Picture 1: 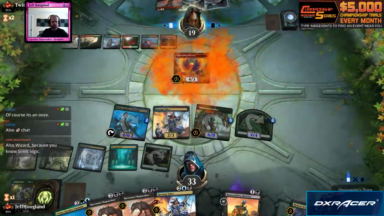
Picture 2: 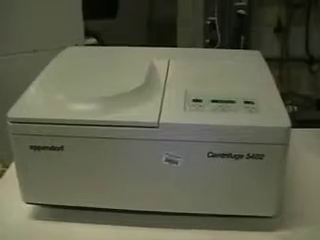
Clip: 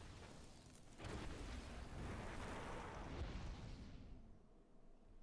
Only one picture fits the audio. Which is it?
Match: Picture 1